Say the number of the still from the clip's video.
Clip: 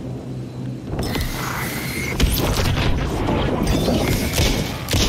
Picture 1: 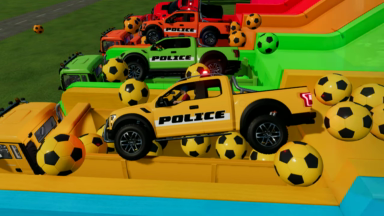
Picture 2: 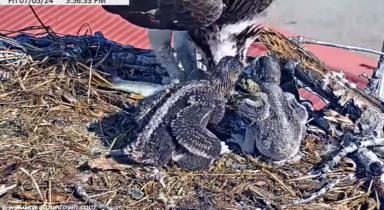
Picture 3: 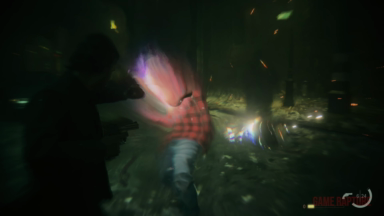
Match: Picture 3